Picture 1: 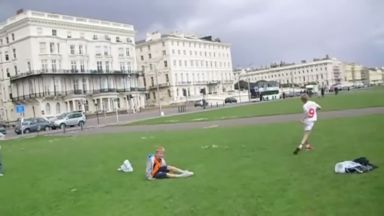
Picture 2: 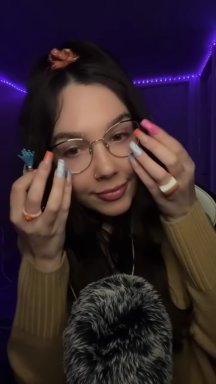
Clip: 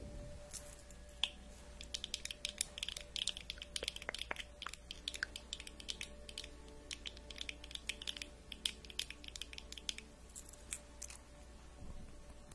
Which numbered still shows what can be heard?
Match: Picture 2